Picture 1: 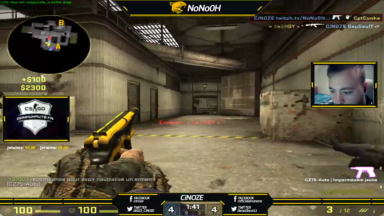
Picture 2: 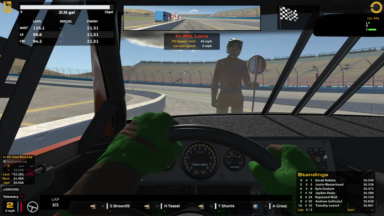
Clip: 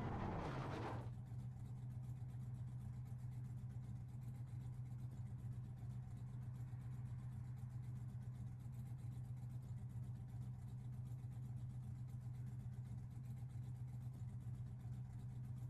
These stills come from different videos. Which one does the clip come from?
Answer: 2